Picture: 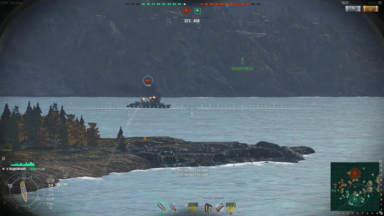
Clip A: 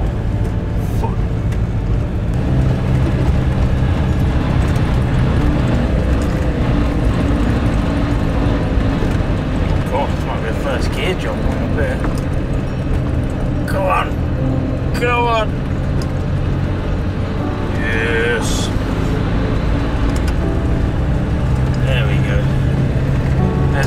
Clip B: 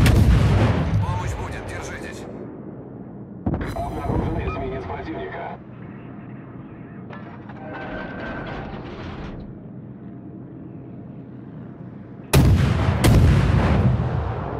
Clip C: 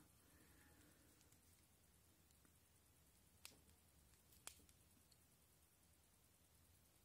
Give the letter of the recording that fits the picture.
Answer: B